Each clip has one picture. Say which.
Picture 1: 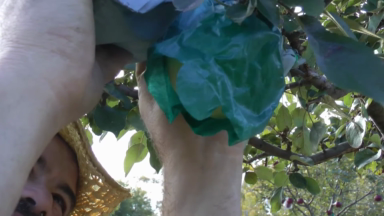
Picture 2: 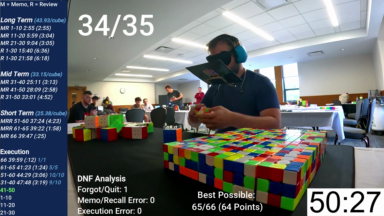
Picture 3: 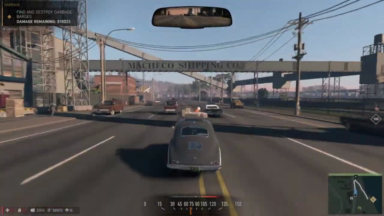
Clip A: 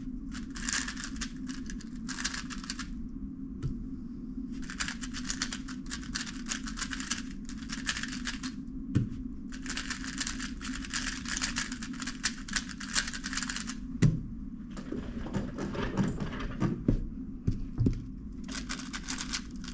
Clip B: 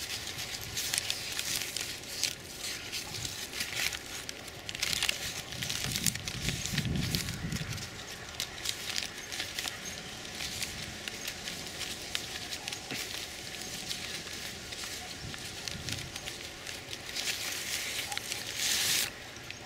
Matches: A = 2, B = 1